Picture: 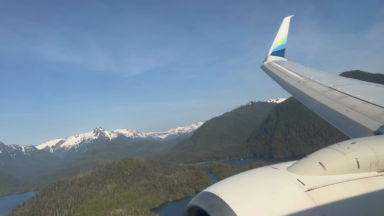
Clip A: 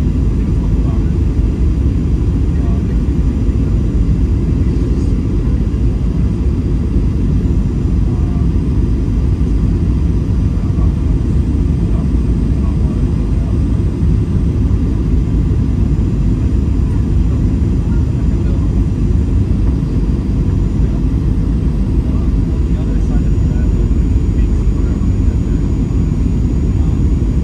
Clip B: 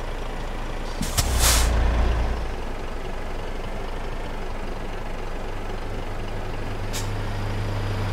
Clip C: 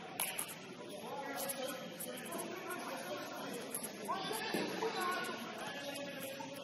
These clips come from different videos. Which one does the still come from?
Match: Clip A